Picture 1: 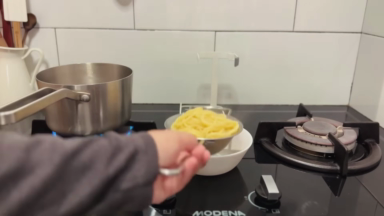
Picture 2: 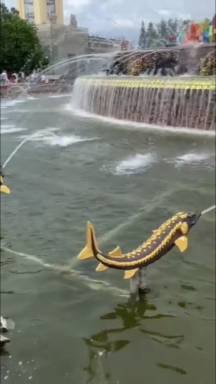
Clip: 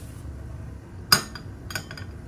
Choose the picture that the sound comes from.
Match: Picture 1